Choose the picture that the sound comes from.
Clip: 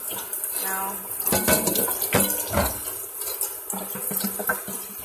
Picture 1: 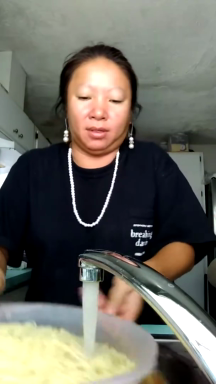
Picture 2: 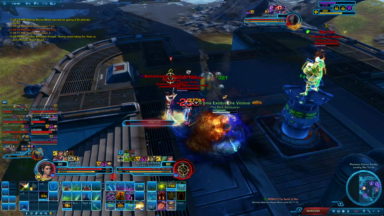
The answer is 1